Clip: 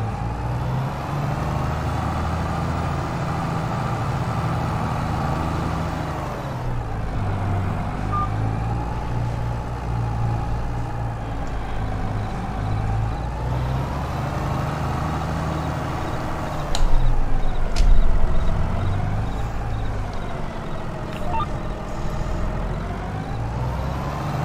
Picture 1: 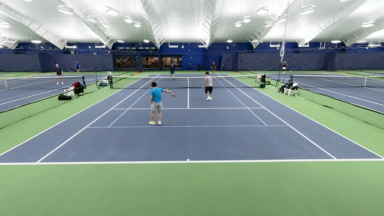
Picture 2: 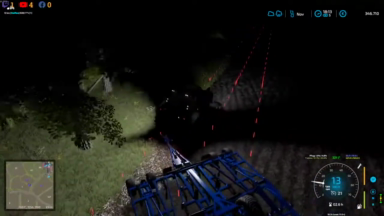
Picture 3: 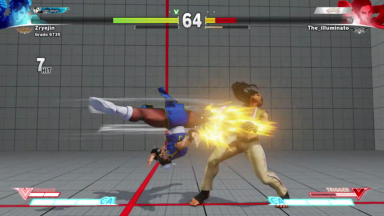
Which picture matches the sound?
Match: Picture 2